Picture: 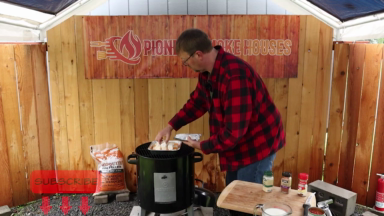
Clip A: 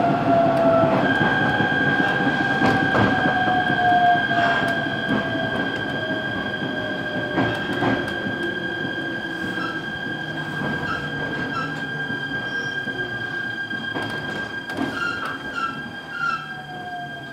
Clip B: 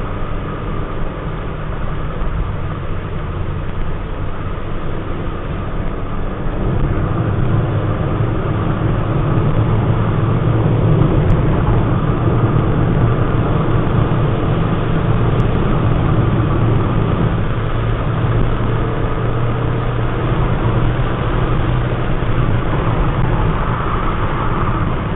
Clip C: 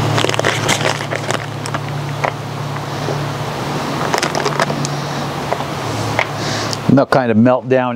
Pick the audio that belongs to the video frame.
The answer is C